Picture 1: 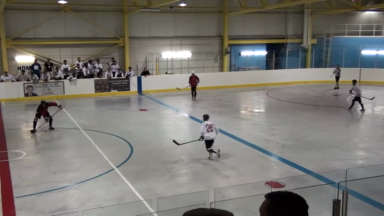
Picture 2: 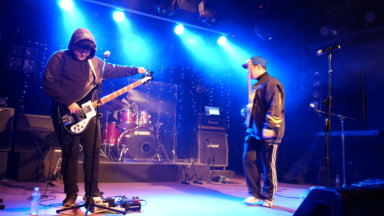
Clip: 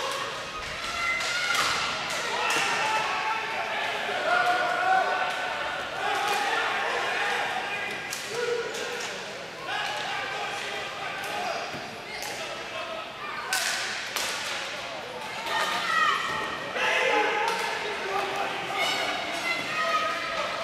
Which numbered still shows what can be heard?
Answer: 1